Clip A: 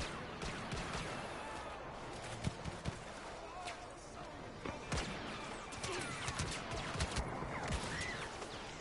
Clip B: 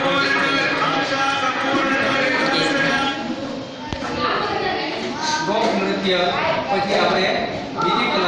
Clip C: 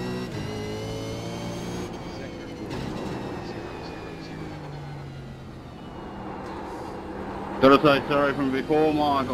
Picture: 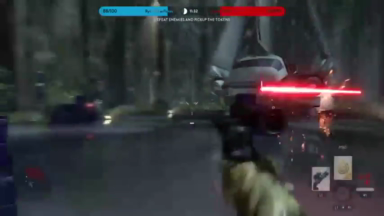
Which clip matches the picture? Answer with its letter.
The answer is A